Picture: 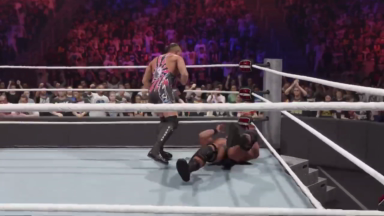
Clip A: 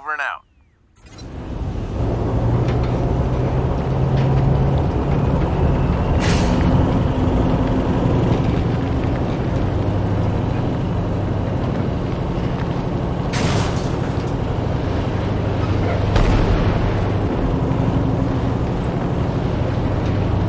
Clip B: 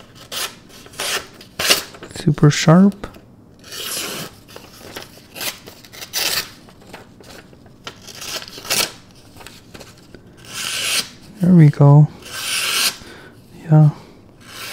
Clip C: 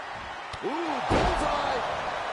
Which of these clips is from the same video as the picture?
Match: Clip C